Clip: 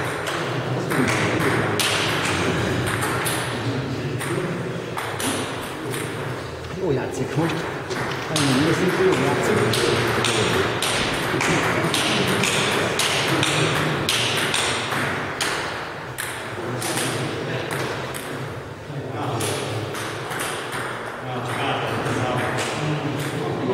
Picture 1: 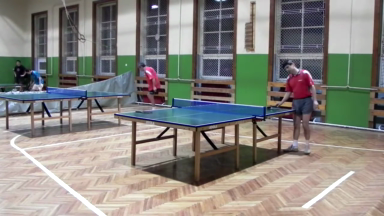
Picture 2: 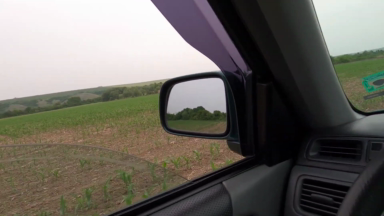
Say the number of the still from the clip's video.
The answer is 1